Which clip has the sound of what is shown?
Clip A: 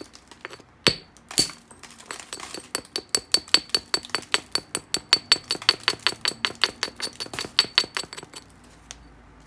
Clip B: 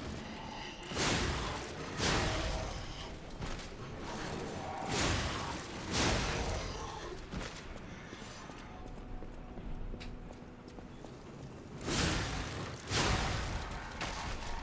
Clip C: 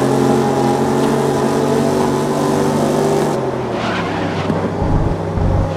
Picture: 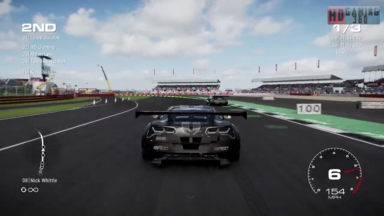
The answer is C